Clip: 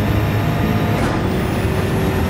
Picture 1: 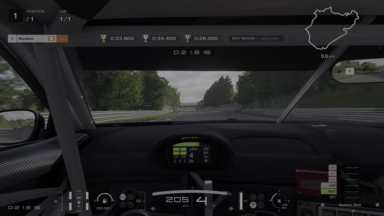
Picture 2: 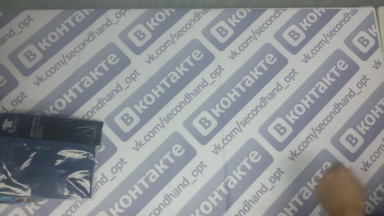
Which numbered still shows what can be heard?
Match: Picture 1